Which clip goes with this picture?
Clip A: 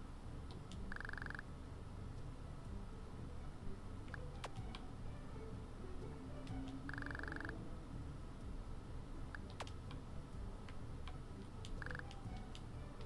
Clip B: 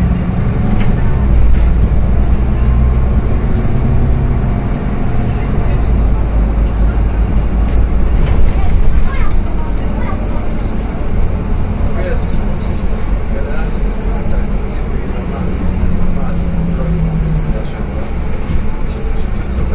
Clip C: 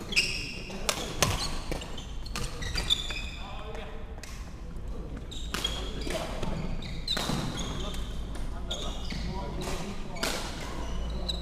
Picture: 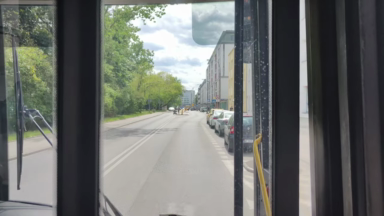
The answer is B